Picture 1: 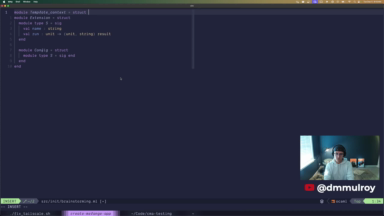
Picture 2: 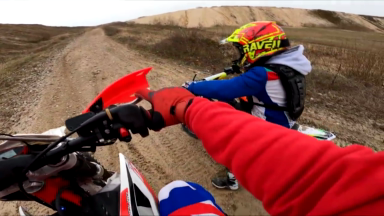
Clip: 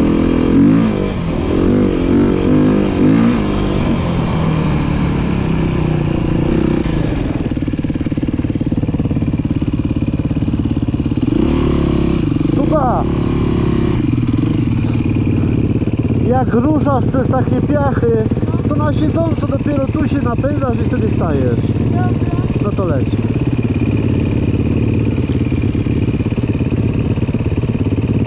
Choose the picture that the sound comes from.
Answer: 2